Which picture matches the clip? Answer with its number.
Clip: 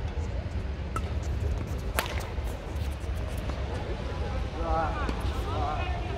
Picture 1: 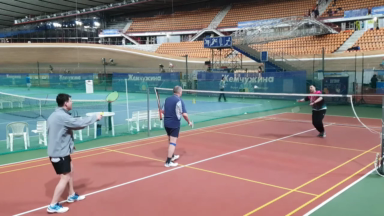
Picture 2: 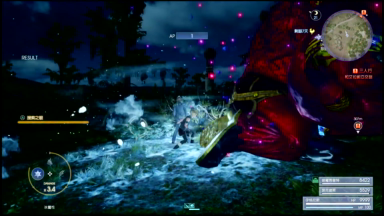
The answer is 1